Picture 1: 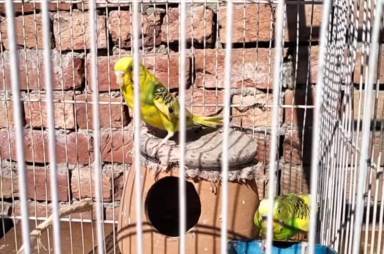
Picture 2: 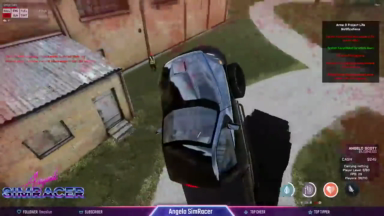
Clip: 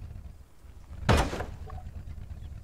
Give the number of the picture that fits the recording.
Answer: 2